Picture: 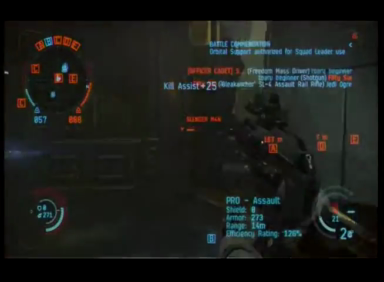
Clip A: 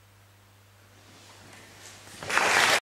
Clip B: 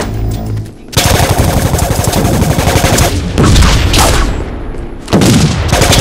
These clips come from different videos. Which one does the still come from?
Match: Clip B